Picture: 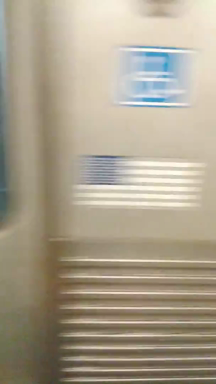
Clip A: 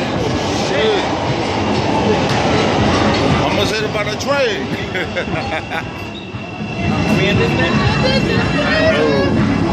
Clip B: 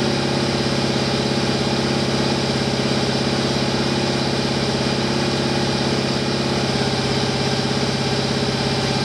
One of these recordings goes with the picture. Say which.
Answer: A